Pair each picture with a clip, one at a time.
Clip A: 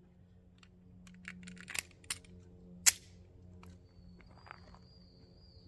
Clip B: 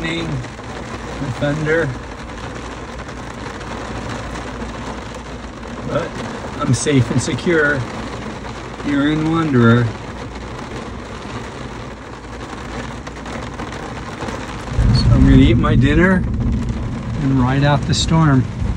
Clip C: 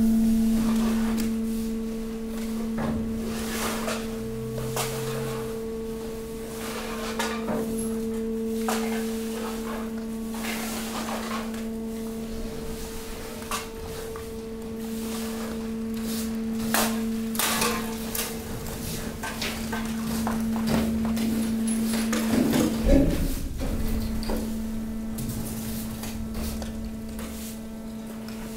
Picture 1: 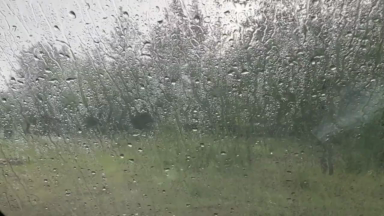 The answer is B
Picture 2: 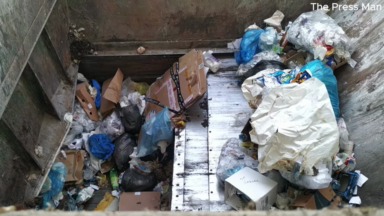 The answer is C